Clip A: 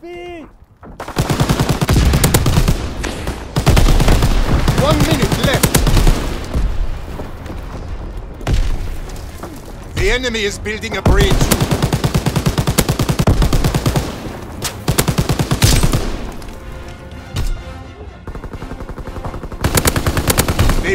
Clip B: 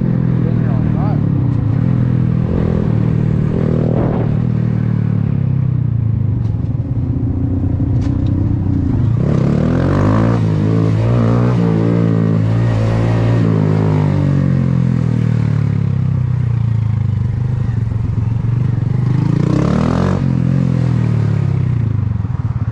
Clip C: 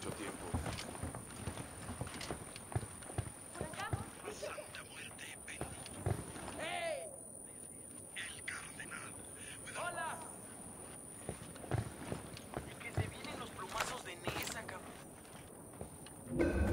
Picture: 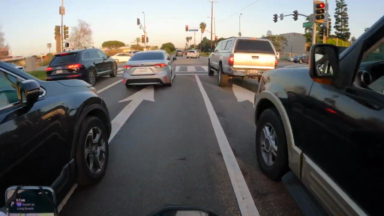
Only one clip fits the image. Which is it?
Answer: B